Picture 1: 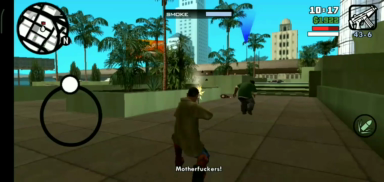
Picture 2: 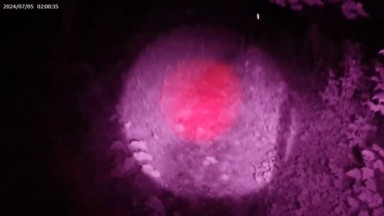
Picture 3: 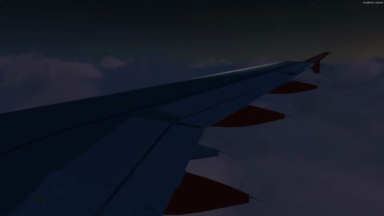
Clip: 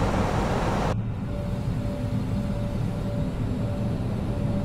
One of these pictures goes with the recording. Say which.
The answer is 3